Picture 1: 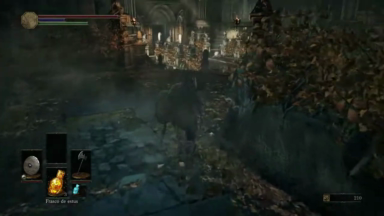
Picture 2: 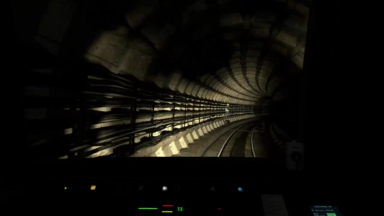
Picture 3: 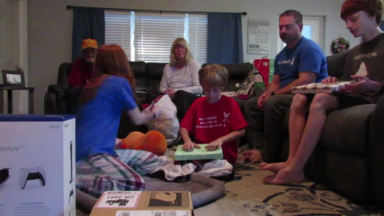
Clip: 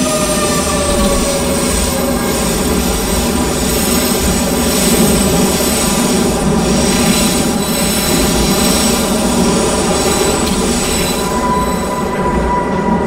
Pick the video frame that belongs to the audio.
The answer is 2